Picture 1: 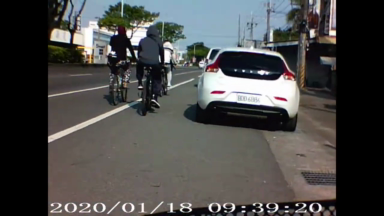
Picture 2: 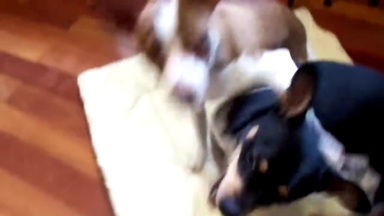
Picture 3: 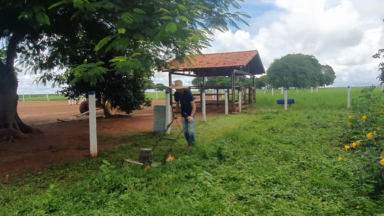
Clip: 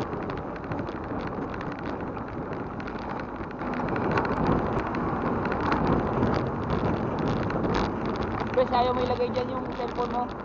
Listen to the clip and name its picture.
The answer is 1